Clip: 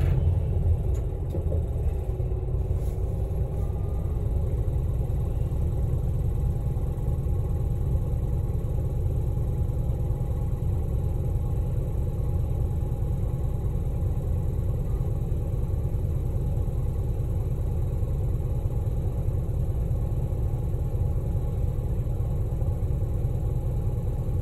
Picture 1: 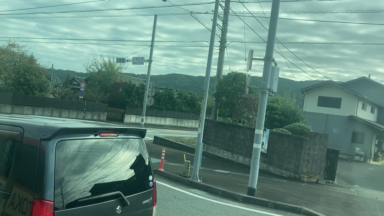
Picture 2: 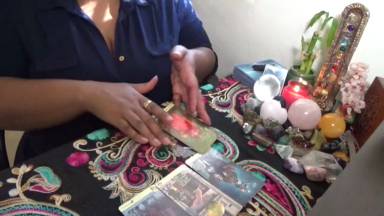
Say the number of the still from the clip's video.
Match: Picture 1